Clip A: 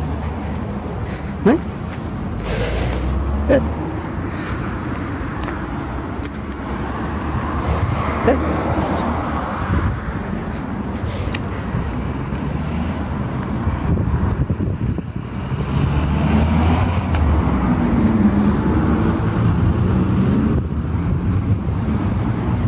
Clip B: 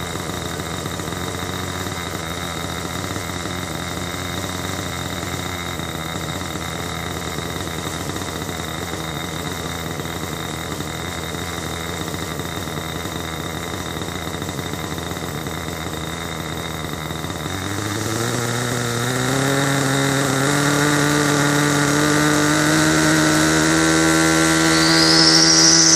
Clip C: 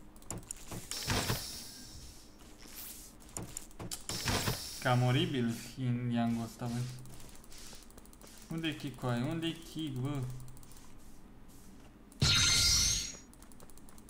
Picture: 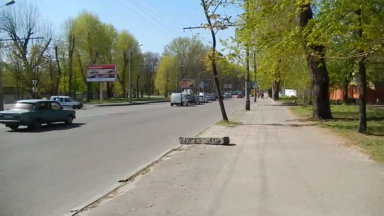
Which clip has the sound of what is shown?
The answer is A